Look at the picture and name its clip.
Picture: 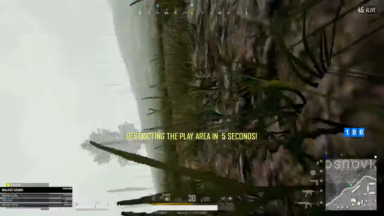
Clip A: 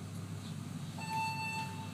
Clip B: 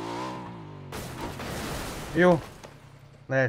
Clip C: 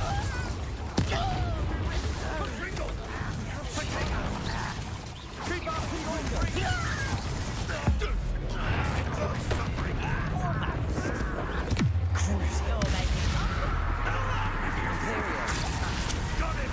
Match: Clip B